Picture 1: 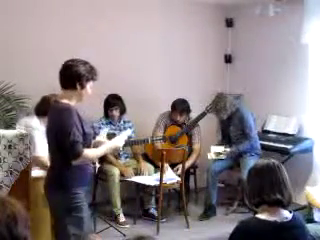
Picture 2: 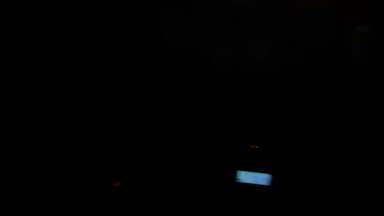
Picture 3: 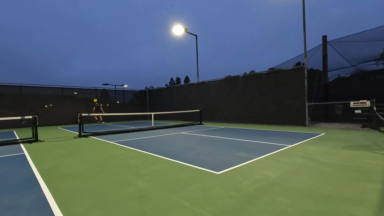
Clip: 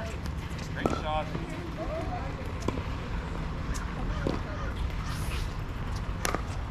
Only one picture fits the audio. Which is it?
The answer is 3